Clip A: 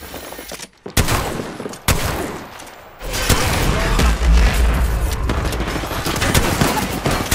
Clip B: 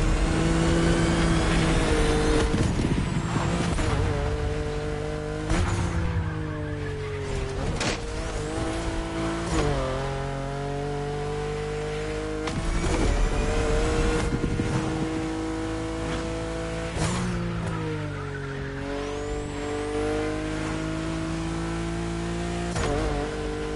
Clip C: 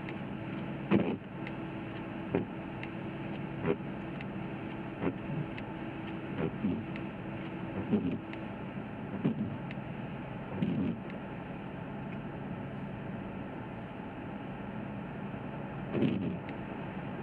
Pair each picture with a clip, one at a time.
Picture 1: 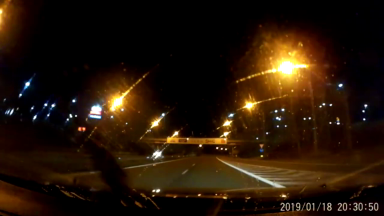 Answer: C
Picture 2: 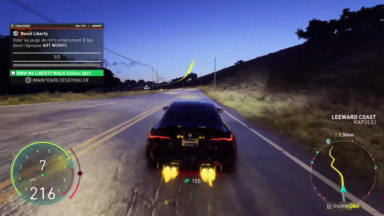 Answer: B